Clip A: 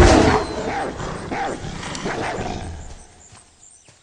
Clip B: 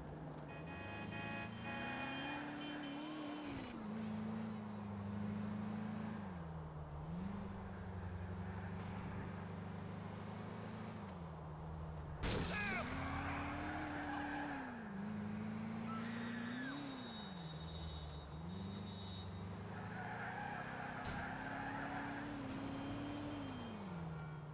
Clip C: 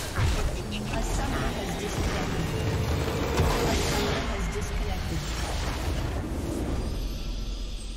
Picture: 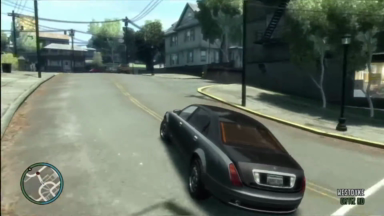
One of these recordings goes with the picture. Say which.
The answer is B